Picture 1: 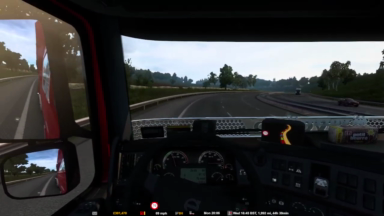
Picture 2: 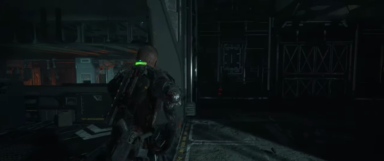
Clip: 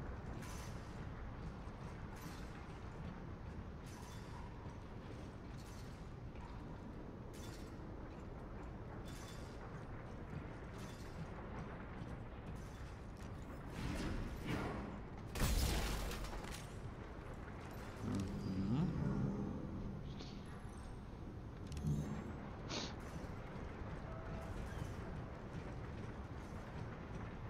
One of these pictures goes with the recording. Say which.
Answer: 2